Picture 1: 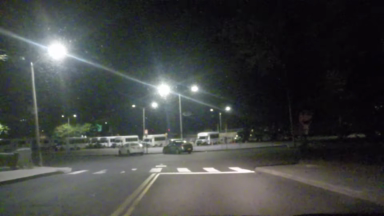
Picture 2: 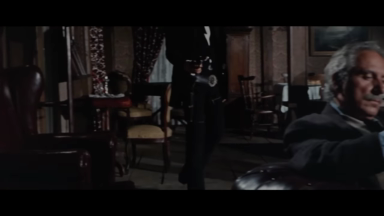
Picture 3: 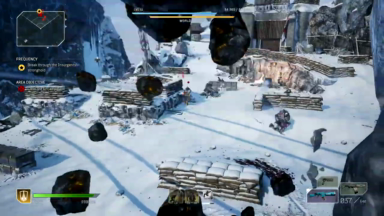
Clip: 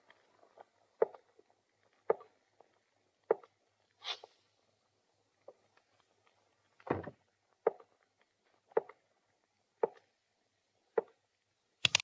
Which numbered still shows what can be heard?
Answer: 2